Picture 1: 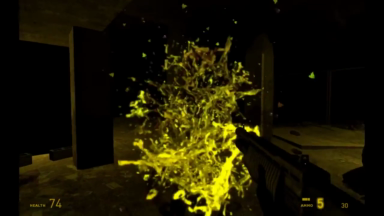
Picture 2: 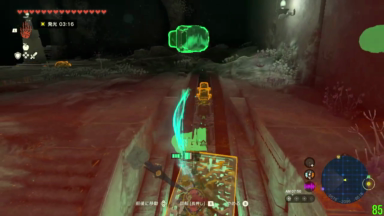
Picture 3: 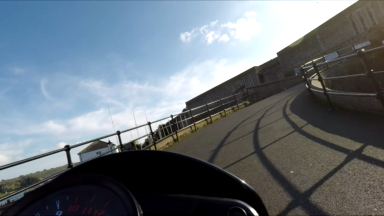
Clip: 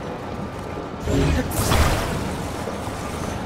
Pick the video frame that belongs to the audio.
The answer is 2